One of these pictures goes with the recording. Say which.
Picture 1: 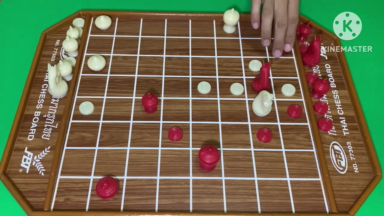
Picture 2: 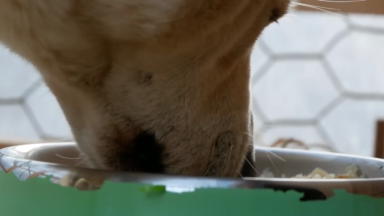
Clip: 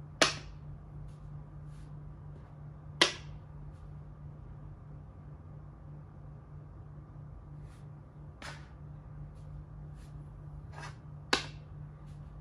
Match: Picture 1